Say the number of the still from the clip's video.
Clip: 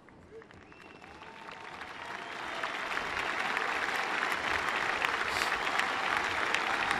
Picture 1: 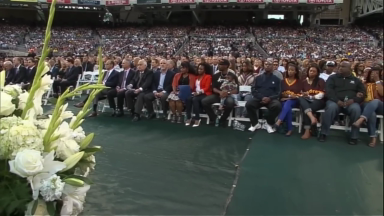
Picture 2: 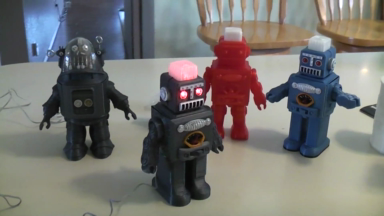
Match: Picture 1